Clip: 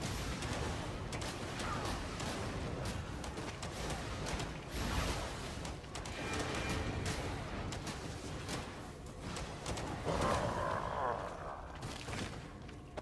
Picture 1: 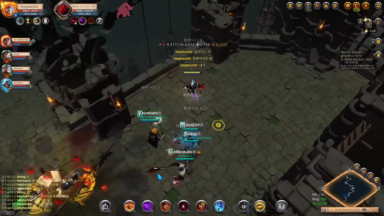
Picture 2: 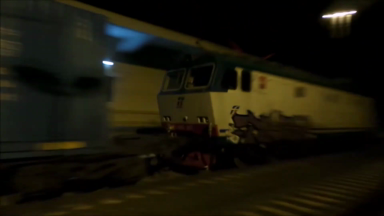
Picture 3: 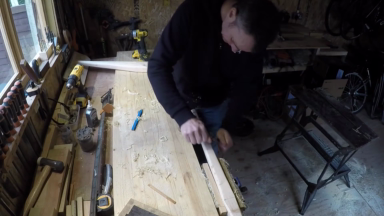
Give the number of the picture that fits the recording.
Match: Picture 1